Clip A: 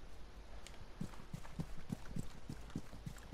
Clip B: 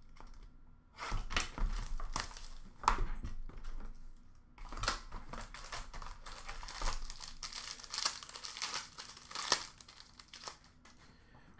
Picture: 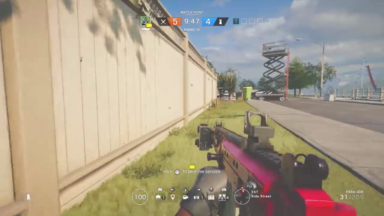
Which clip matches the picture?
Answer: A